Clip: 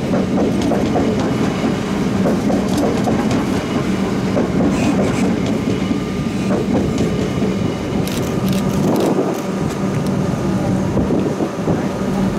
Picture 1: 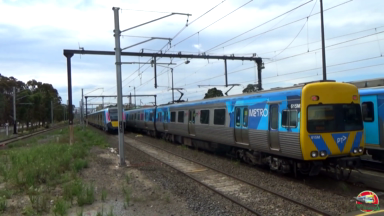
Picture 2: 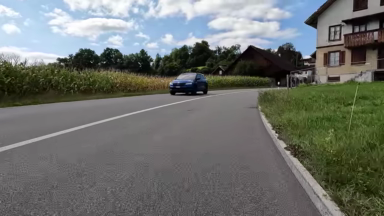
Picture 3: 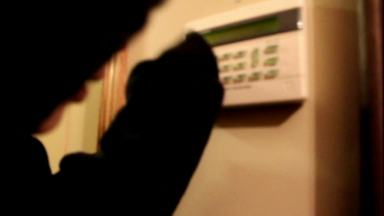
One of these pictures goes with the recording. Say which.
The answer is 1